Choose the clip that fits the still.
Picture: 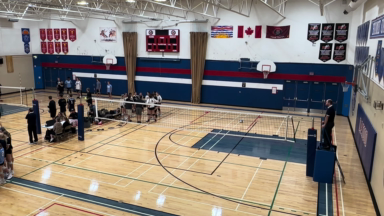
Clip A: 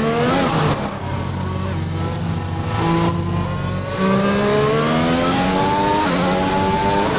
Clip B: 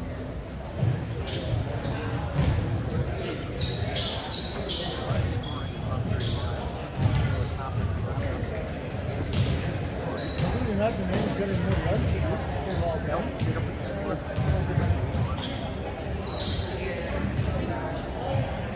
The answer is B